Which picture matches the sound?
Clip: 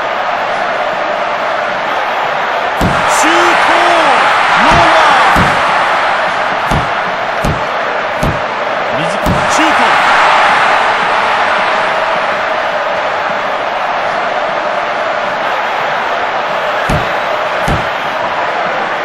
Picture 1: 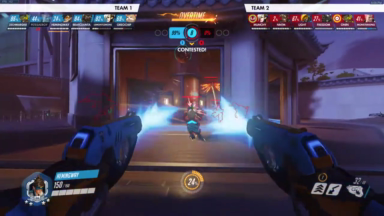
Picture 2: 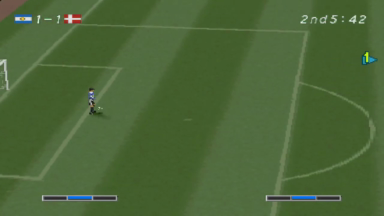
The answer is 2